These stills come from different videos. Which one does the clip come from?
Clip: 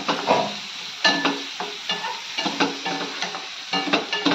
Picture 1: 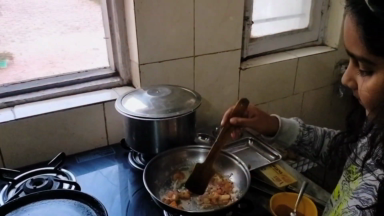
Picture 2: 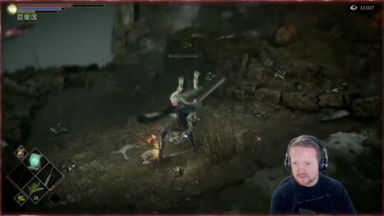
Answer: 1